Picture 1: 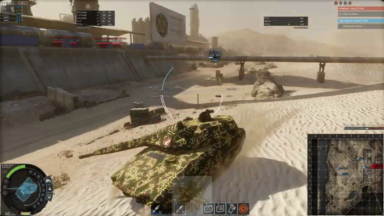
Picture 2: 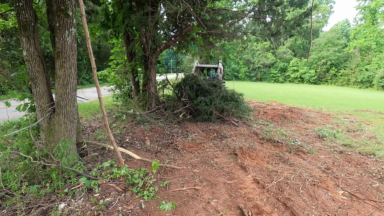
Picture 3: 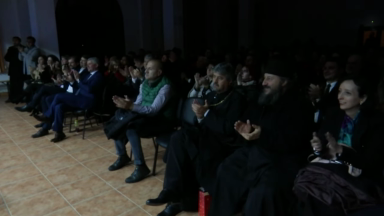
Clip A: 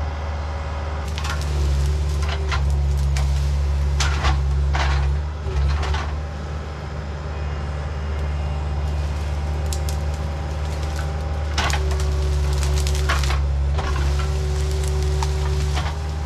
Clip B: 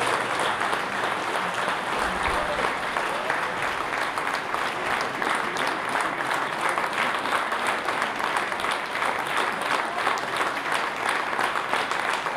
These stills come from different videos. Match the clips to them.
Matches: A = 2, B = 3